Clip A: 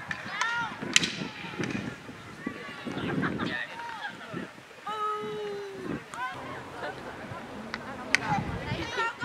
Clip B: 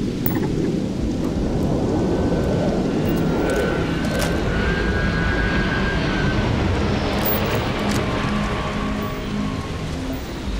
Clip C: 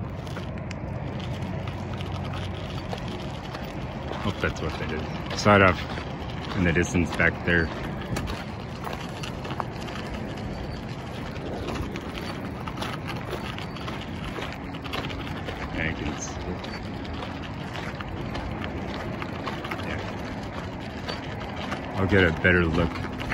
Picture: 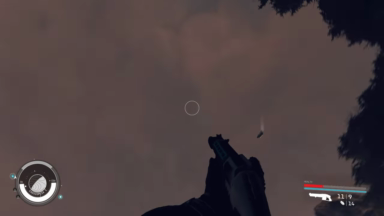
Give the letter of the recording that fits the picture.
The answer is B